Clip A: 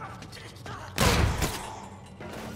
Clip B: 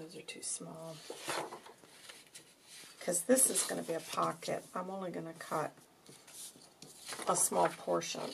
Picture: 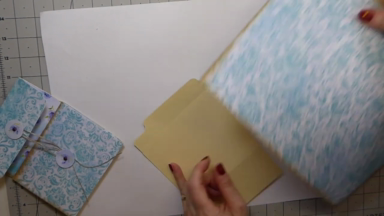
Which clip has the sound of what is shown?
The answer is B